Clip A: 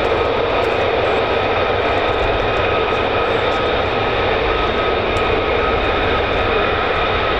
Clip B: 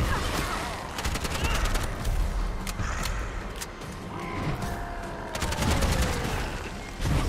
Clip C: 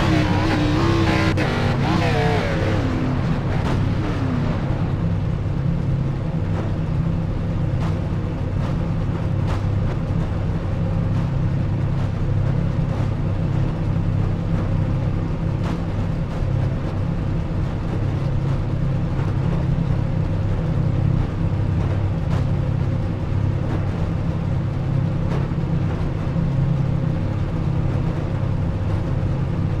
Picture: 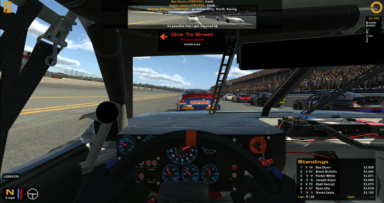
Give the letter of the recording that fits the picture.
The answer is C